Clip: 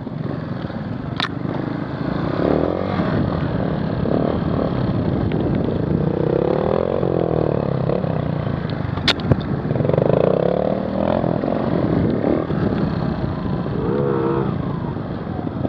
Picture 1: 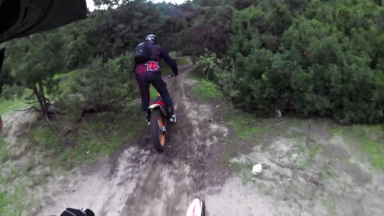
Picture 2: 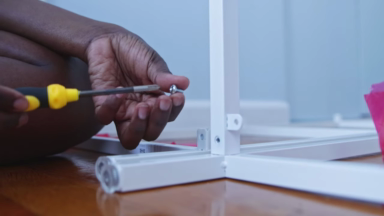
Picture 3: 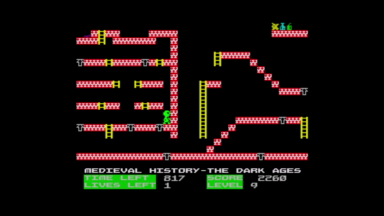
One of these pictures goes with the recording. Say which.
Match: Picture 1